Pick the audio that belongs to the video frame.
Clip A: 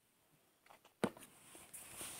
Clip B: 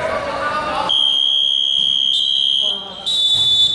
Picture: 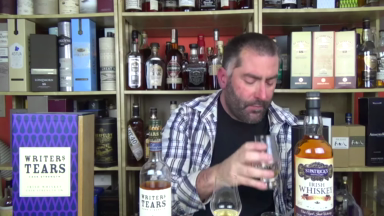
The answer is A